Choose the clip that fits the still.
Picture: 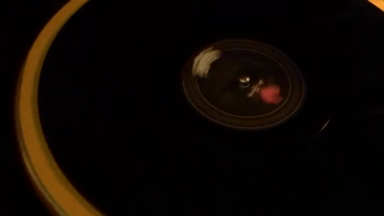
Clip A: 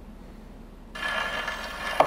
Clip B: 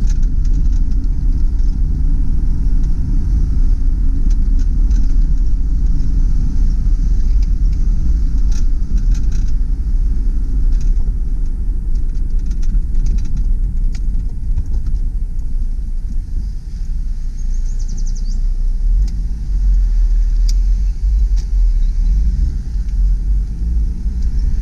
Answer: A